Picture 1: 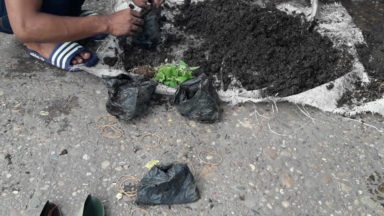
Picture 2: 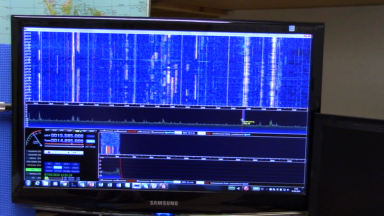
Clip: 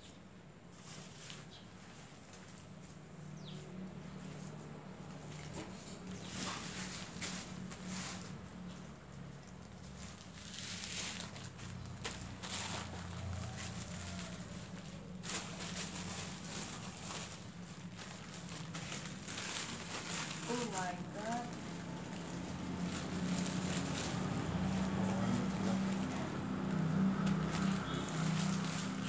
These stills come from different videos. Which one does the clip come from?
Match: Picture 1